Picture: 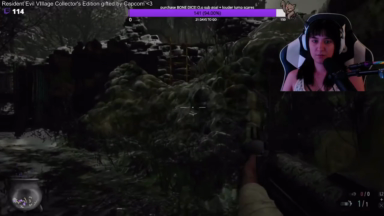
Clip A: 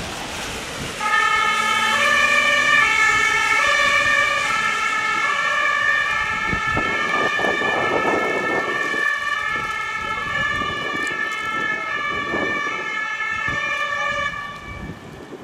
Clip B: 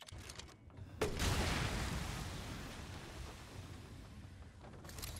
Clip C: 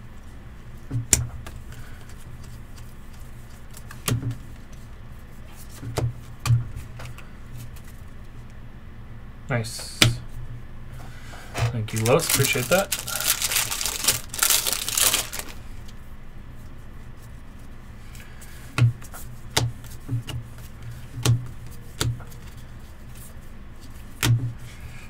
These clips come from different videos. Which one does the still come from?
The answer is B